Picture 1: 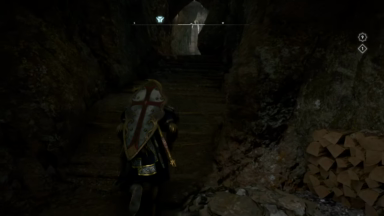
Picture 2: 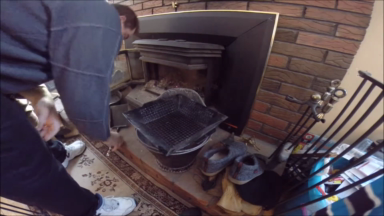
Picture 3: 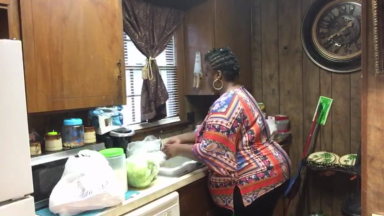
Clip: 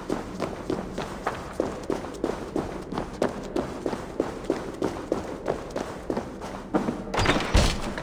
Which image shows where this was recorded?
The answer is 1